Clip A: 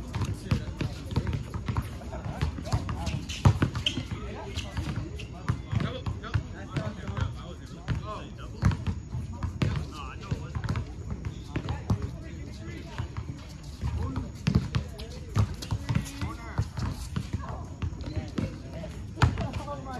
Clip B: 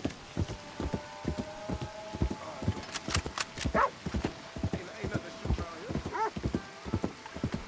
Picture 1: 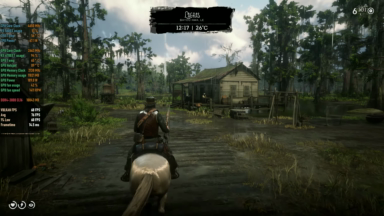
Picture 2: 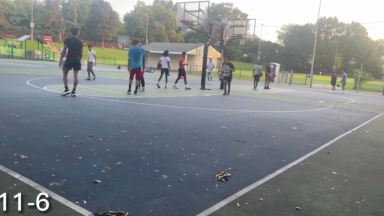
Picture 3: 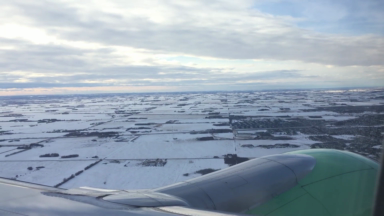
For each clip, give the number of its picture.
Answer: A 2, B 1